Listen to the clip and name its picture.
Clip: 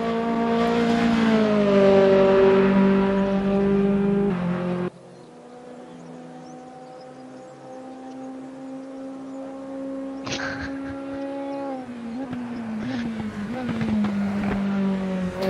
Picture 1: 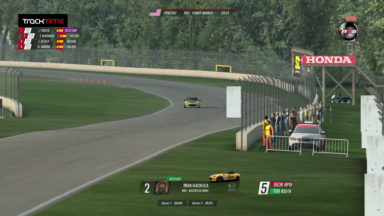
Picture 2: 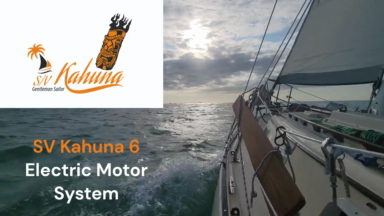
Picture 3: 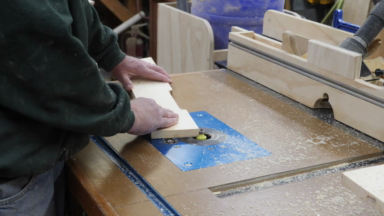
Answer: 1